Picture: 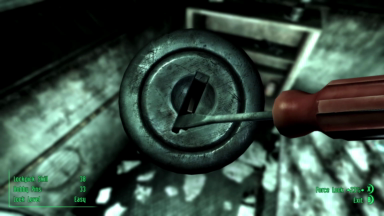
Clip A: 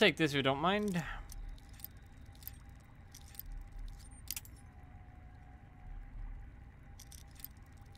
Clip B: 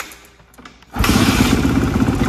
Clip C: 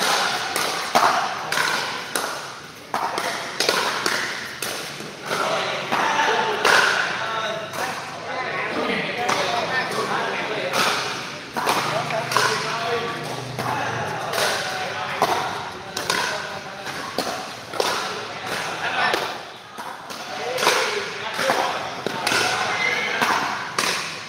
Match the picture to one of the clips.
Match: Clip A